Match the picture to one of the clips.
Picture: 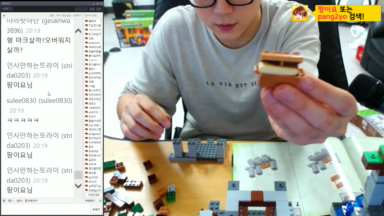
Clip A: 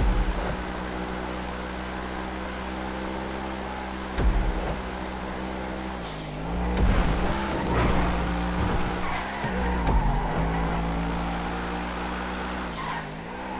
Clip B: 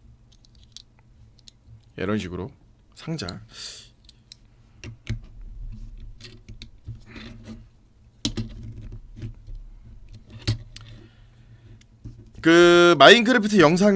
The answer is B